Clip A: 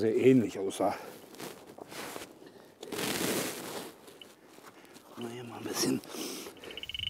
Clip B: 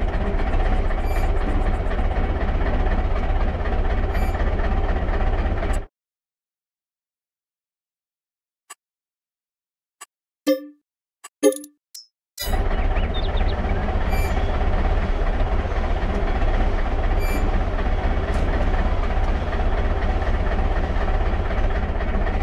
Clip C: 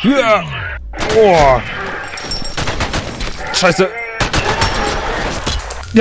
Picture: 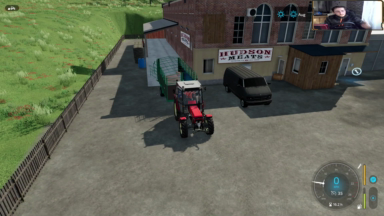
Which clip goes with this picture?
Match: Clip B